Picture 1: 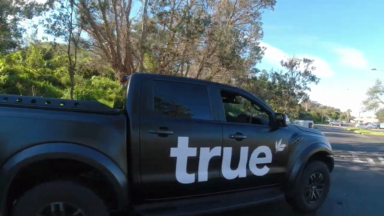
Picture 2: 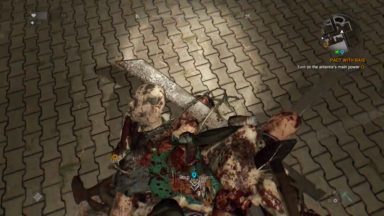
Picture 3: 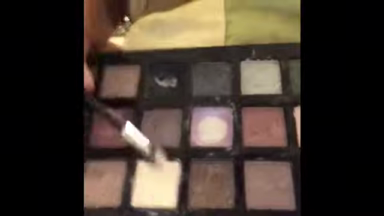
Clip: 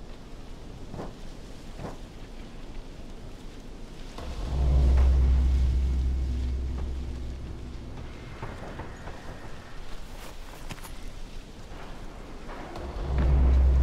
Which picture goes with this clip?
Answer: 2